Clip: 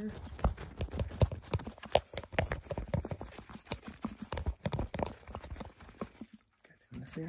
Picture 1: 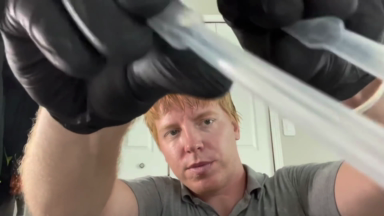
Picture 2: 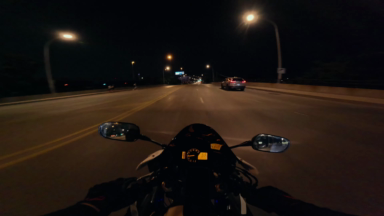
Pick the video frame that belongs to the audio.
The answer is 1